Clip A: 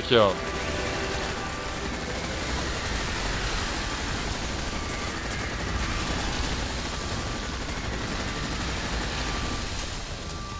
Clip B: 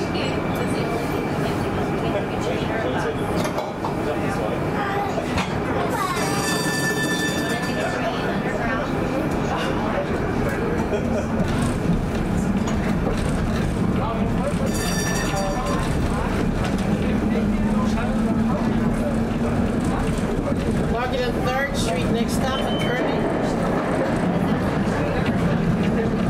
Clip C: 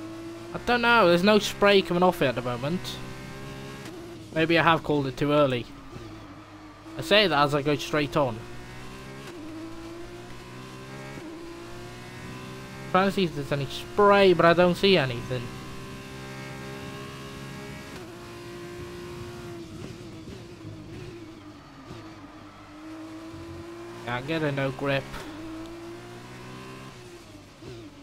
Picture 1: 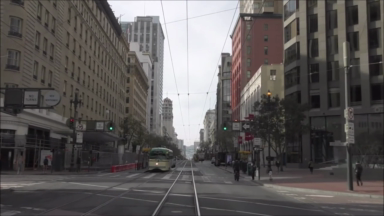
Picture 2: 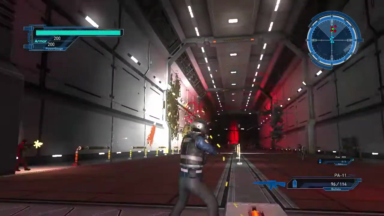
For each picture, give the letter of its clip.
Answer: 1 B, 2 A